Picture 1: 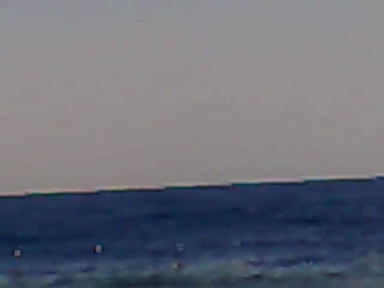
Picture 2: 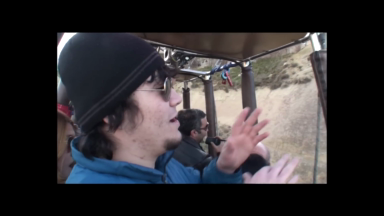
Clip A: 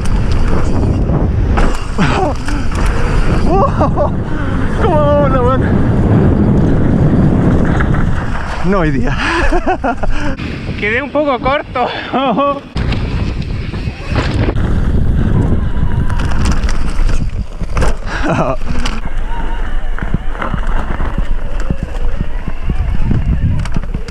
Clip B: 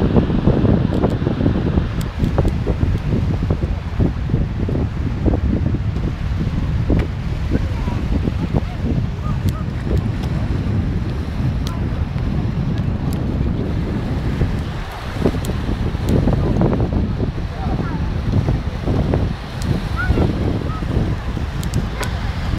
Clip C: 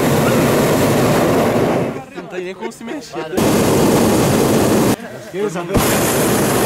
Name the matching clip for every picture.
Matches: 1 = B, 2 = C